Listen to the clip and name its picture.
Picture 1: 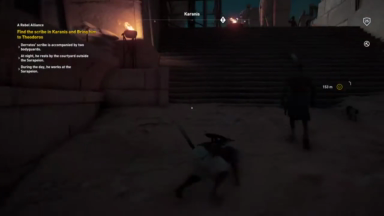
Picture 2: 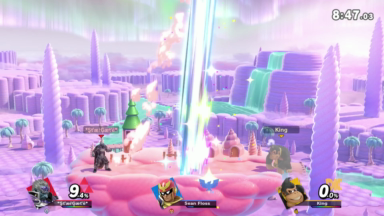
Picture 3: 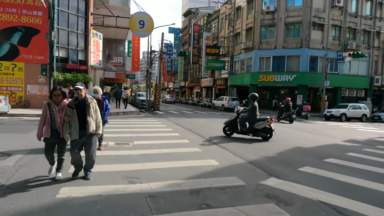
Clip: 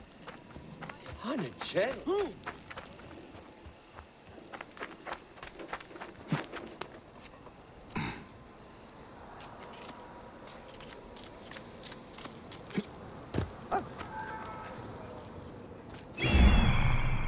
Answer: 1